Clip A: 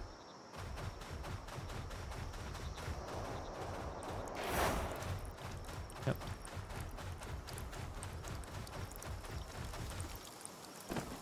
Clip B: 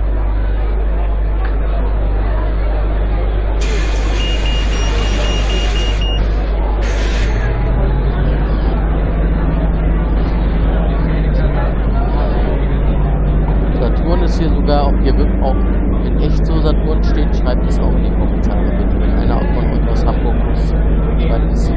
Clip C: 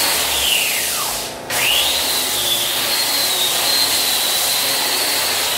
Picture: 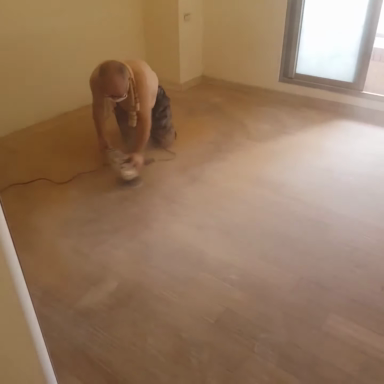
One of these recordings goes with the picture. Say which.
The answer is C